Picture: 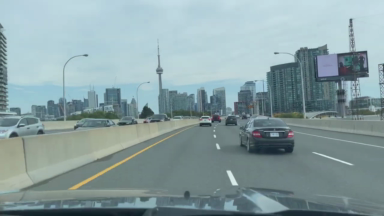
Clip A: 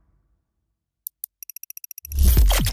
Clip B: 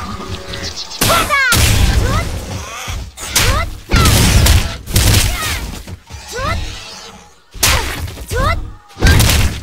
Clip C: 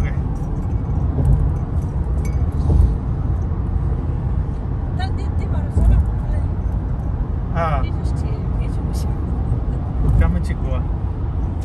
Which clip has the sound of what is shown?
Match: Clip C